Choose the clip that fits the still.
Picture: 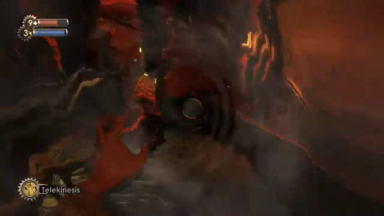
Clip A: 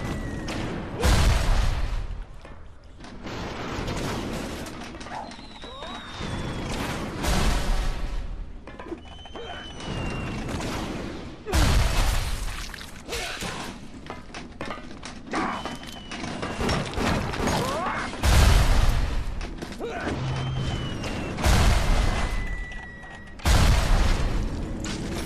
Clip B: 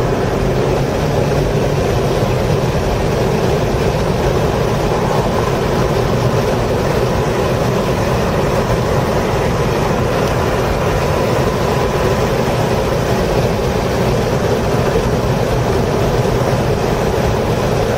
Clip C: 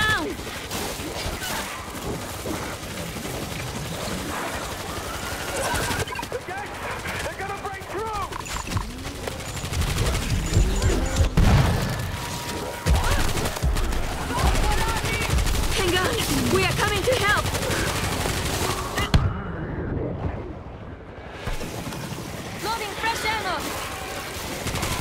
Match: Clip A